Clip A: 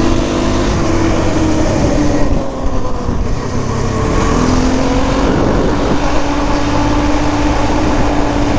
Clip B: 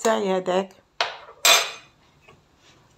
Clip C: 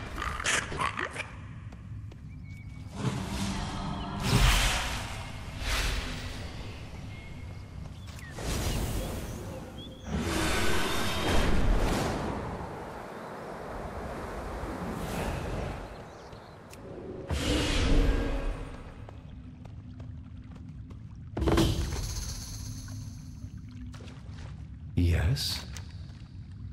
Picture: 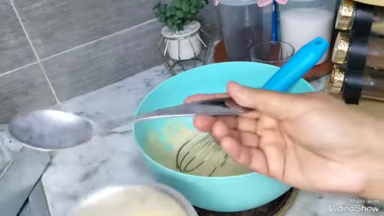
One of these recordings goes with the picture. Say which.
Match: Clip B